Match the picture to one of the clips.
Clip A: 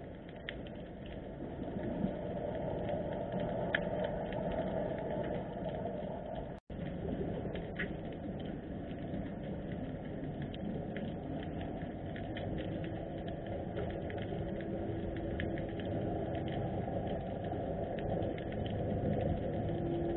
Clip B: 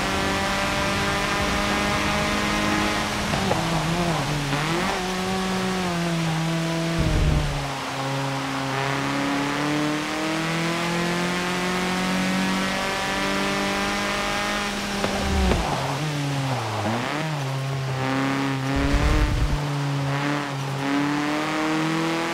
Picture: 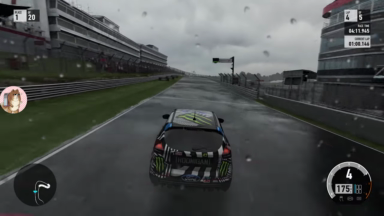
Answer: B